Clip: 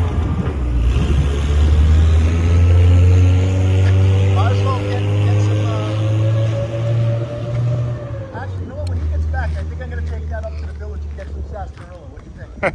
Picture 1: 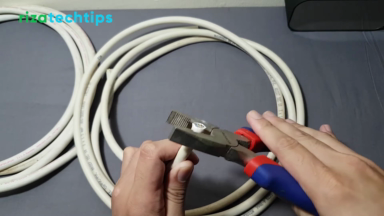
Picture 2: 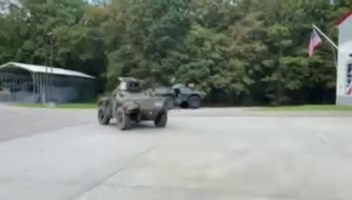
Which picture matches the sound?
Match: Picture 2